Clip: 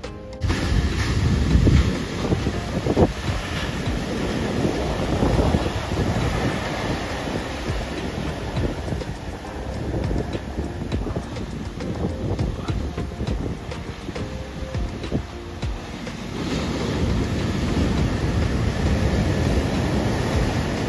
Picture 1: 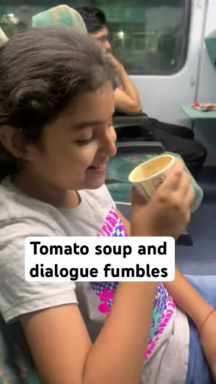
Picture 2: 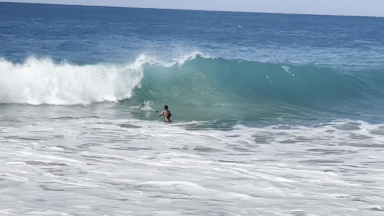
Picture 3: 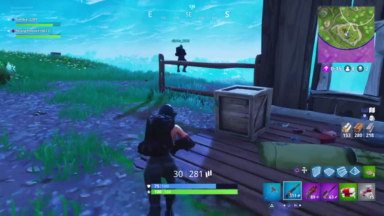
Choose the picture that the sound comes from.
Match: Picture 2